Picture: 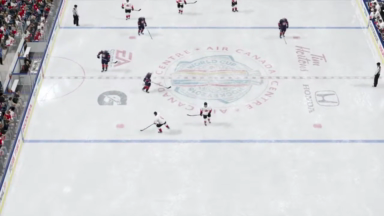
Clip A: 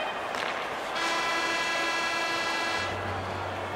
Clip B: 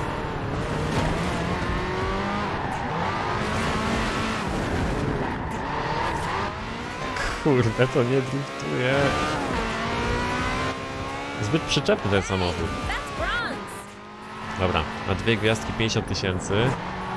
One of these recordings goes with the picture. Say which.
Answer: A